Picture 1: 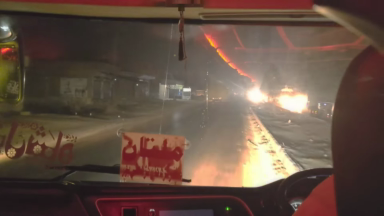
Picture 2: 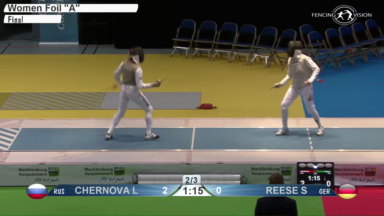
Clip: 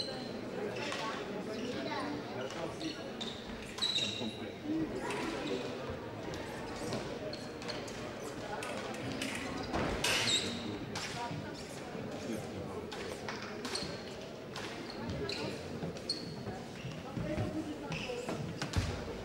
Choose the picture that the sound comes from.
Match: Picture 2